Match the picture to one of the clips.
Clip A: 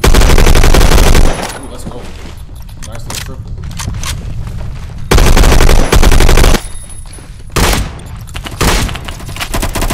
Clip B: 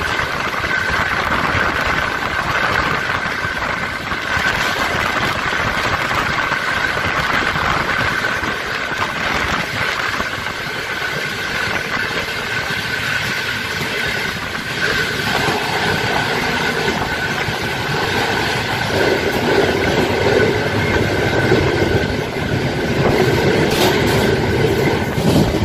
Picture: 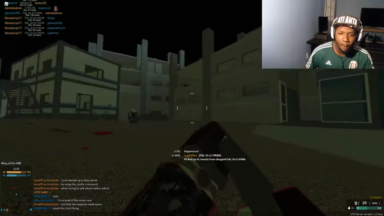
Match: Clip A